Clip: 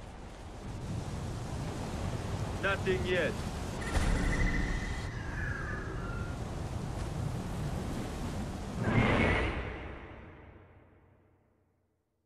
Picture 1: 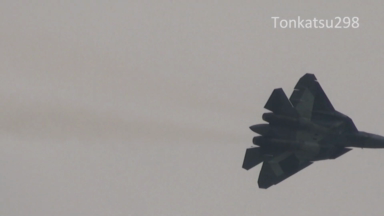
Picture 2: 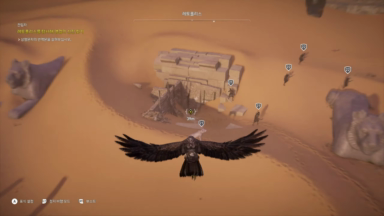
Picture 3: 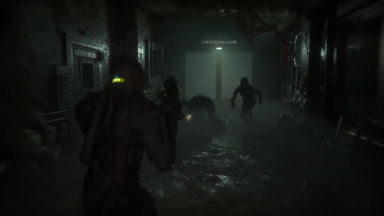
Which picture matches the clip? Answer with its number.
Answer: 2